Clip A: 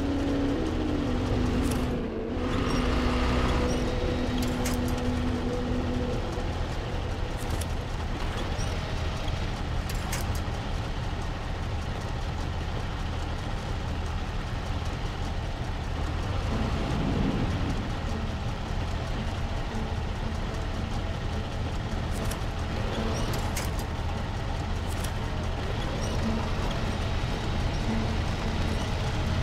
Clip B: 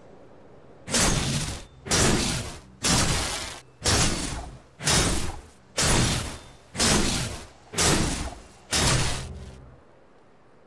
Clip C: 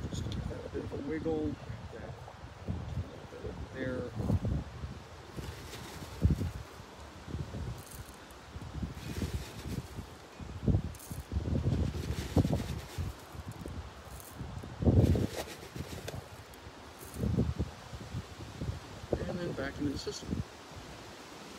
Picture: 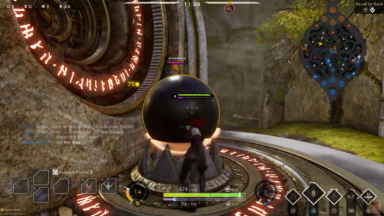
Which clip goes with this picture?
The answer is B